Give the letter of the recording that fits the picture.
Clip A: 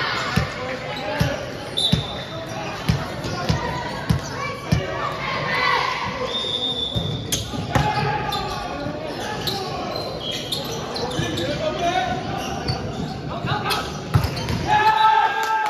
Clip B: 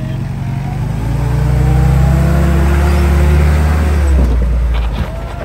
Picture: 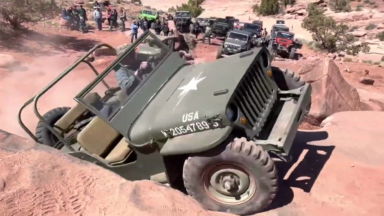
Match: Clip B